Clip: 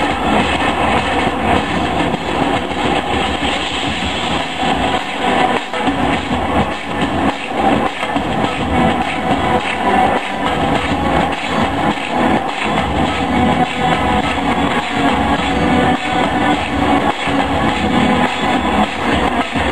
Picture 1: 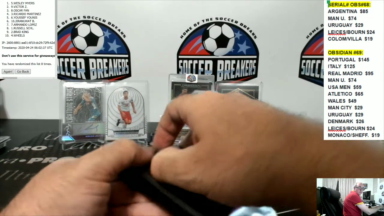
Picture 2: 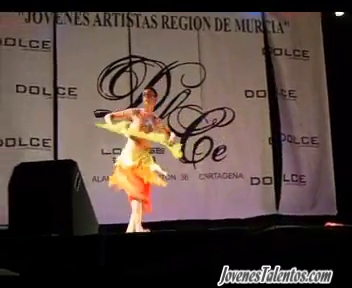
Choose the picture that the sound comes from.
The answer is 2